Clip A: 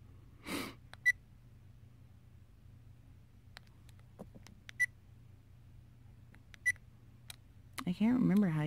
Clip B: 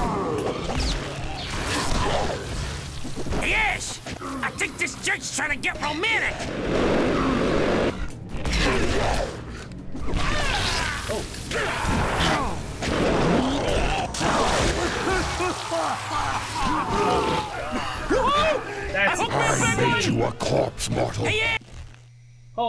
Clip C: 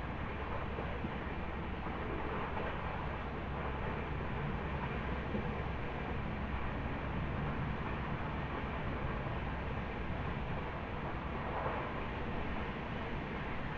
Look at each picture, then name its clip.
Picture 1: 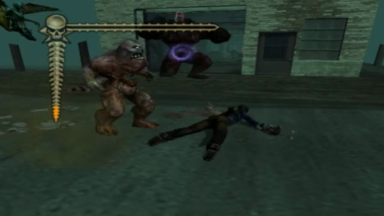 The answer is B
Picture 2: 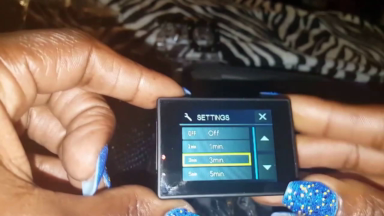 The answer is A